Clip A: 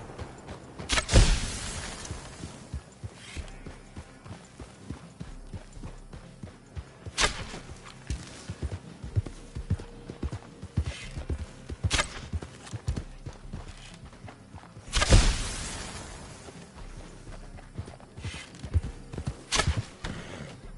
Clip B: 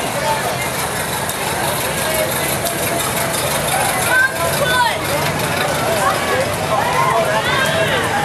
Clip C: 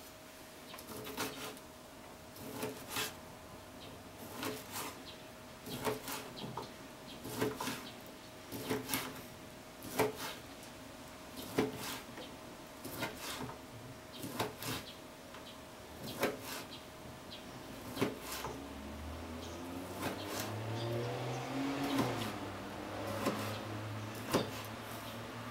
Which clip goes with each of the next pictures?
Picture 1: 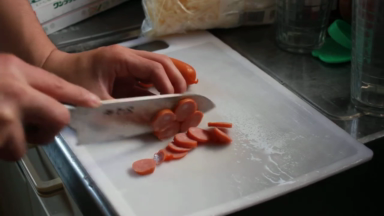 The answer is C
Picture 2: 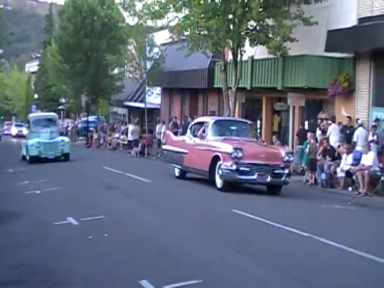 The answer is B